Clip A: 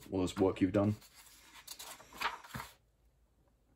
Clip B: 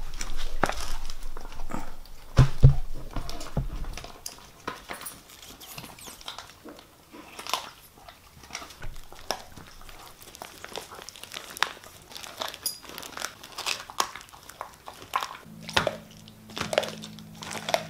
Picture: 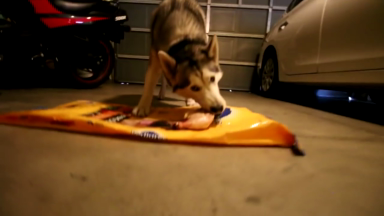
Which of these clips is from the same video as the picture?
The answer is B